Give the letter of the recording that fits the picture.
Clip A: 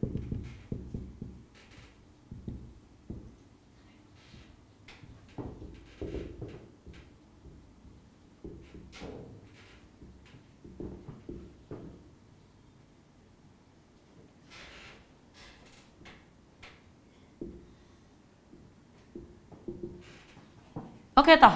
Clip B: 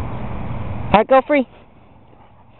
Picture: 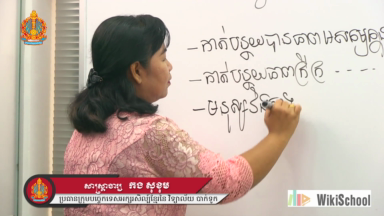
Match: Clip A